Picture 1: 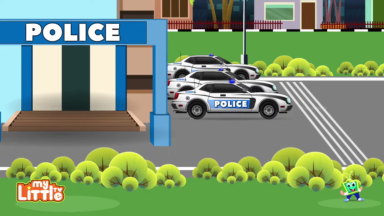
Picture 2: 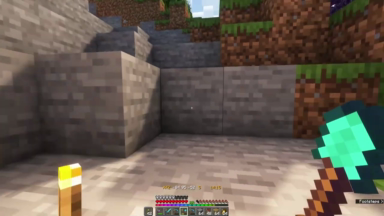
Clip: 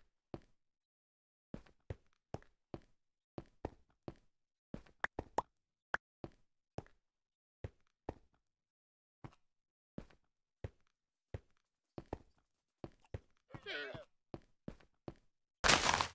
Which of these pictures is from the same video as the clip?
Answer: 2